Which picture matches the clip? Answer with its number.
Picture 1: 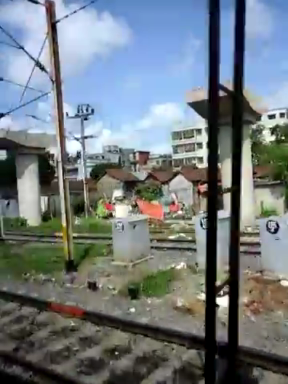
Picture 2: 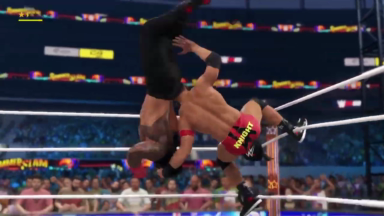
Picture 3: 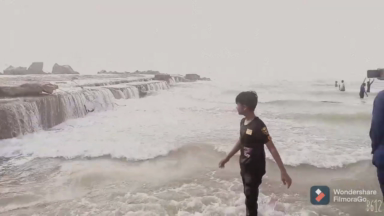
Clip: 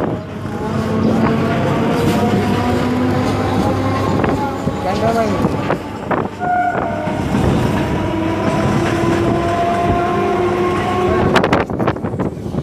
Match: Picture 1